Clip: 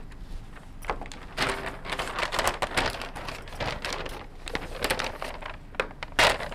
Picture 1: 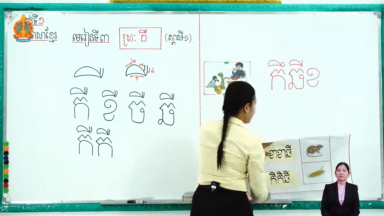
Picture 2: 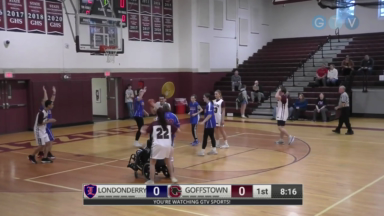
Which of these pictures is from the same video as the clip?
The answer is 1